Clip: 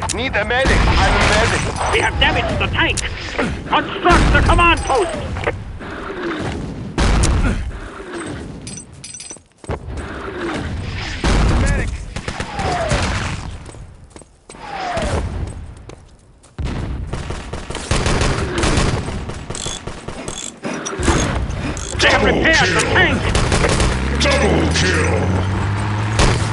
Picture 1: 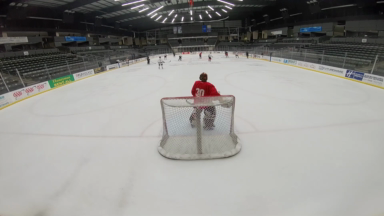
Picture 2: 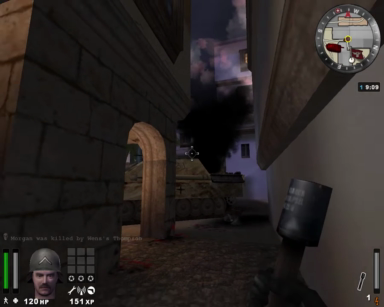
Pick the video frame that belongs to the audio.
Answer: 2